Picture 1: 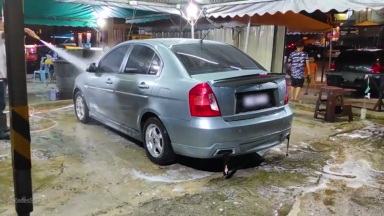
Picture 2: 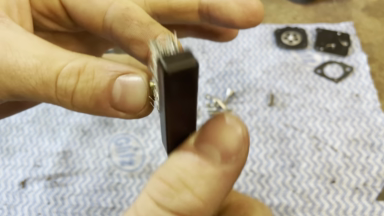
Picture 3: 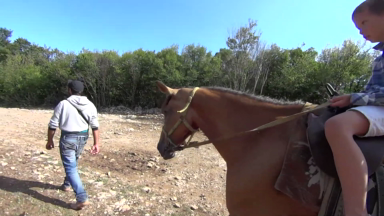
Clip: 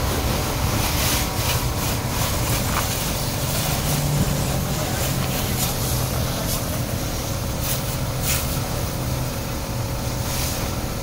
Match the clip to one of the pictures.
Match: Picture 1